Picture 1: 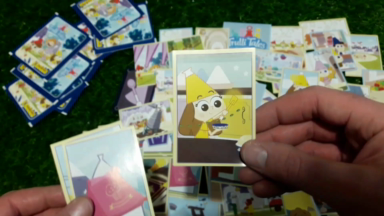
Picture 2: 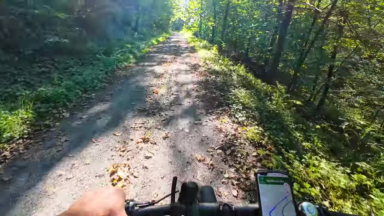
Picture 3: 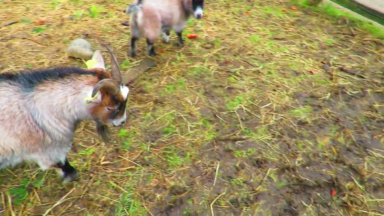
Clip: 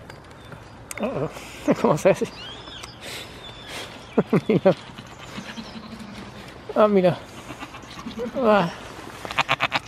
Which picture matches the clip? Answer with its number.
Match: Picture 3